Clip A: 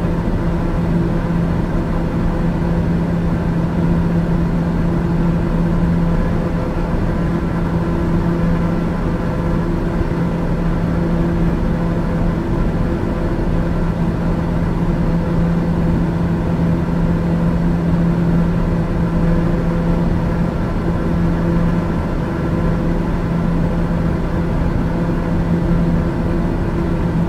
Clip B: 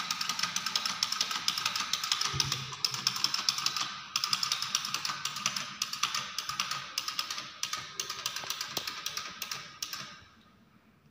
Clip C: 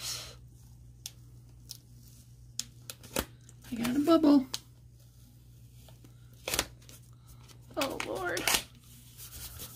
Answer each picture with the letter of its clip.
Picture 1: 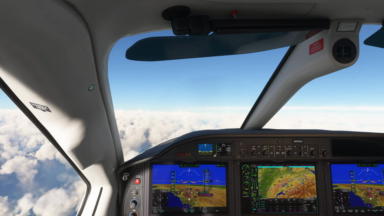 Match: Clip A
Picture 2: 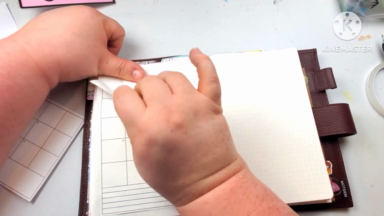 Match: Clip C